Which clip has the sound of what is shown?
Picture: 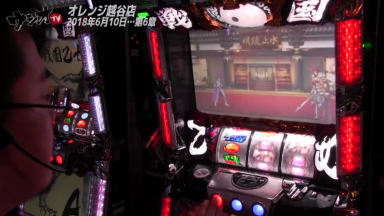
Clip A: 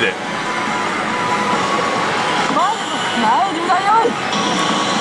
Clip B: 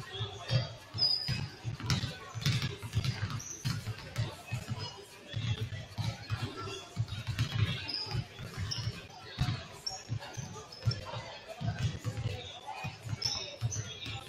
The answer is A